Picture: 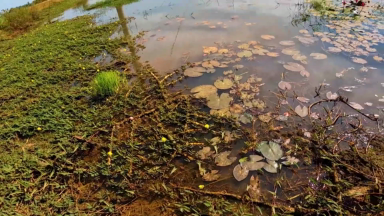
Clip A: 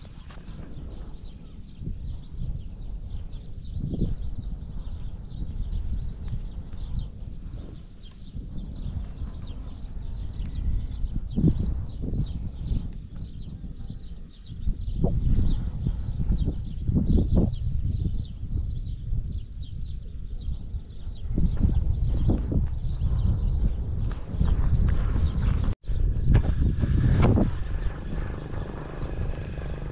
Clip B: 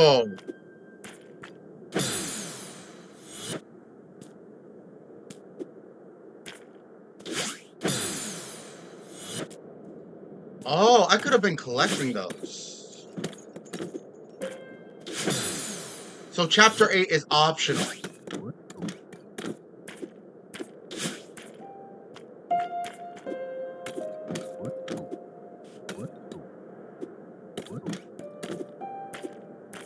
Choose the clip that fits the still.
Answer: A